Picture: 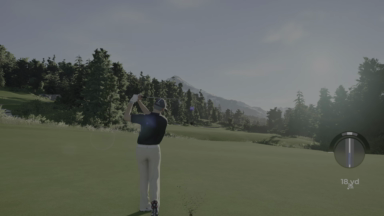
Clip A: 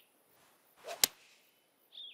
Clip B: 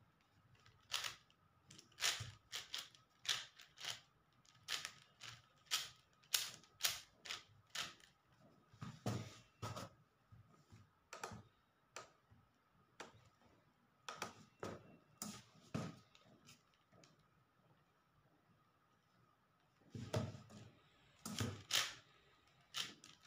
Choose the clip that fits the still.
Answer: A